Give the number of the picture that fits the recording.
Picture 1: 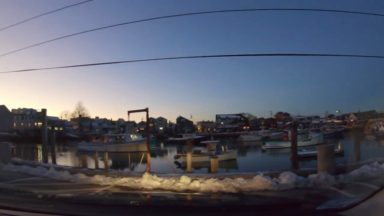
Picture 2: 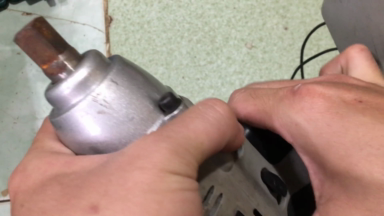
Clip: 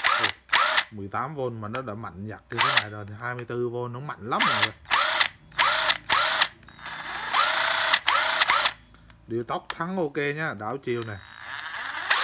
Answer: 2